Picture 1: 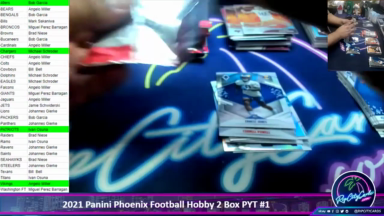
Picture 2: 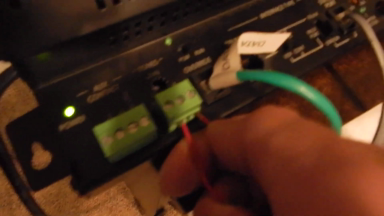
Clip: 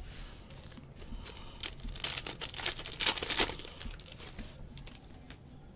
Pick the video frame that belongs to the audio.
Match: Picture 1